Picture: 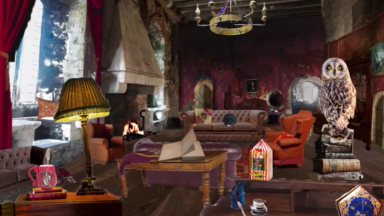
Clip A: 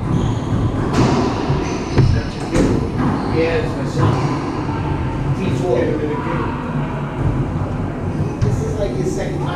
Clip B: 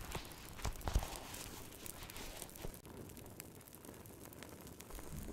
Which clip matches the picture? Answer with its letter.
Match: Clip B